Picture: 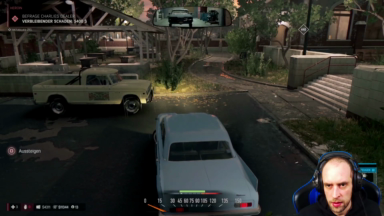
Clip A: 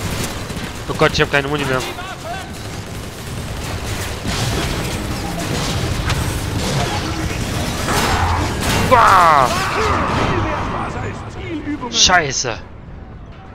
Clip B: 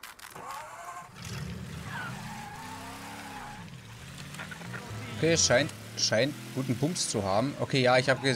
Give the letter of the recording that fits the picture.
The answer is B